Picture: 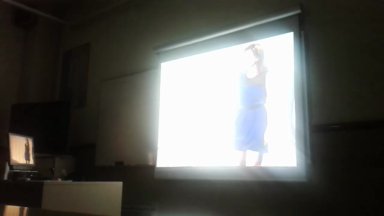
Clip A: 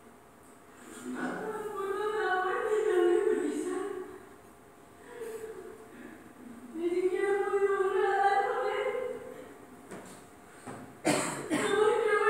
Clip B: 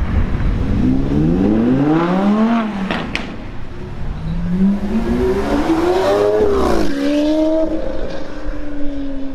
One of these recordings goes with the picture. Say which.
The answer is A